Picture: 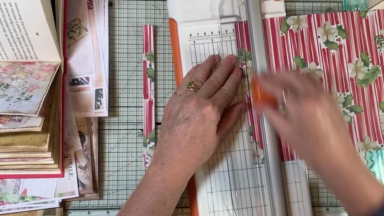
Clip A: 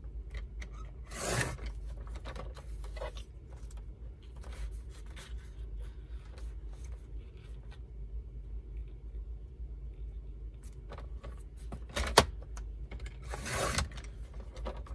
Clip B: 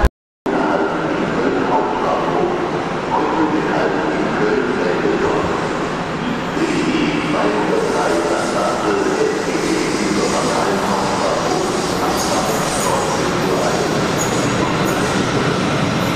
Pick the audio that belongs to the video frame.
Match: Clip A